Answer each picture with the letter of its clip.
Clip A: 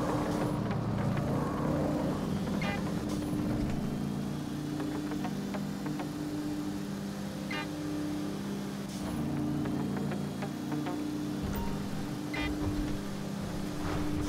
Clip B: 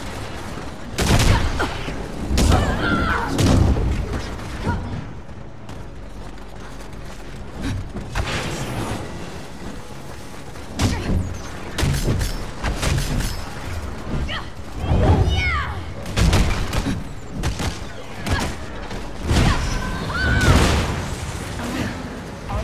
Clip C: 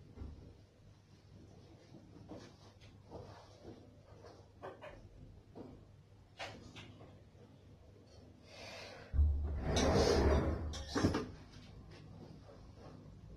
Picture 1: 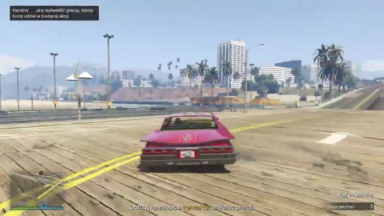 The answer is A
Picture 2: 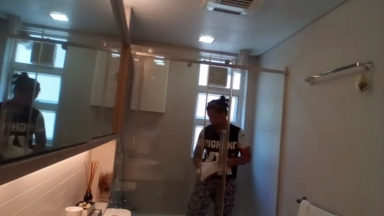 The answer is C